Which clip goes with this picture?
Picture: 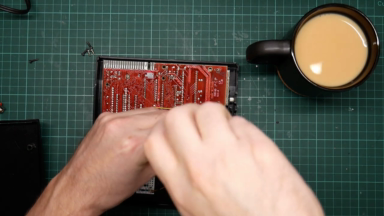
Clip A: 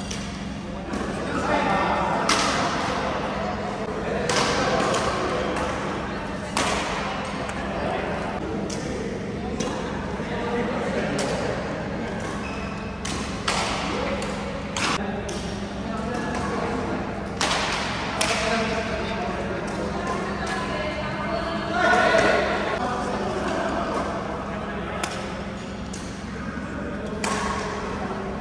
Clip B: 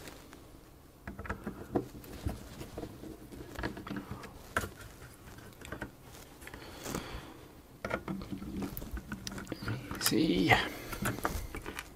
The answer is B